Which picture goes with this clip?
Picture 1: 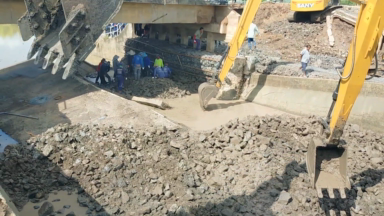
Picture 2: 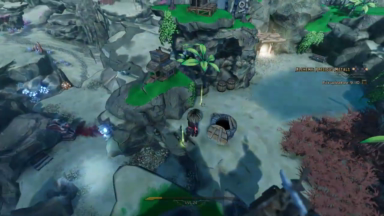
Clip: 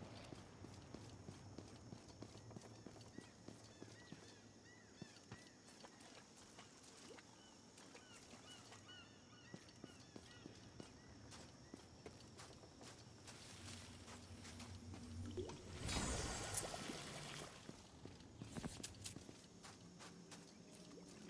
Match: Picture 2